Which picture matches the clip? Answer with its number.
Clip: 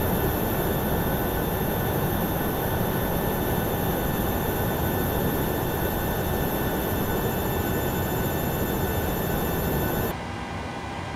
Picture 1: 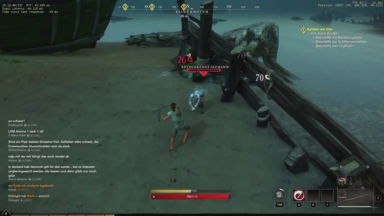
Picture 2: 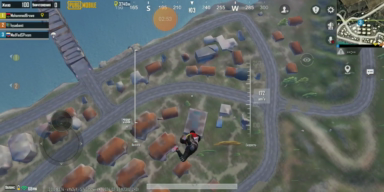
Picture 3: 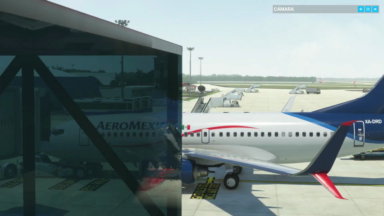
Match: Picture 3